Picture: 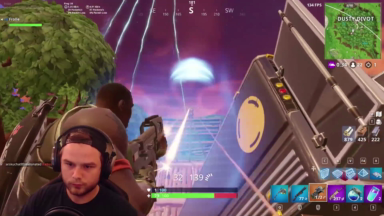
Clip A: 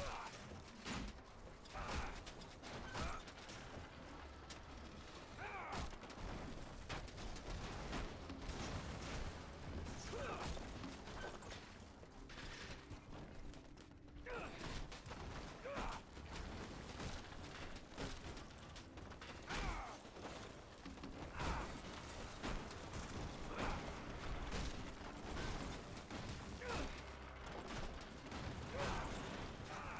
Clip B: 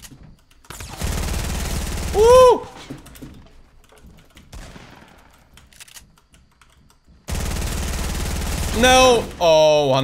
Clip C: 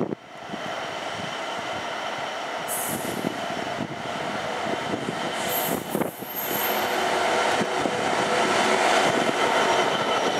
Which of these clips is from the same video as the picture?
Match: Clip B